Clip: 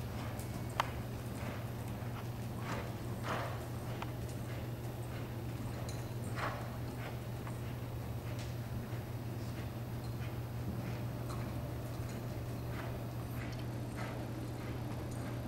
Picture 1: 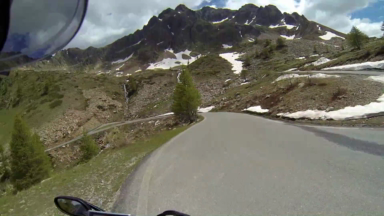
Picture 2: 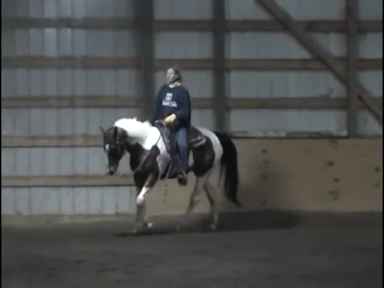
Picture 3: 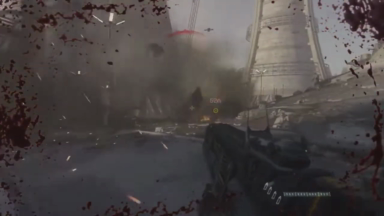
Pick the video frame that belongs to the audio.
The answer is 2